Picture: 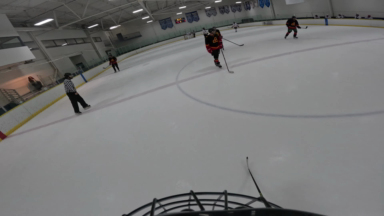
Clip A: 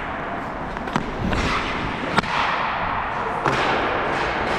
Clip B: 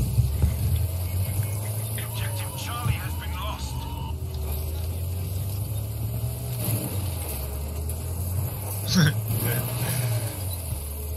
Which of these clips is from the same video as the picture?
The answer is A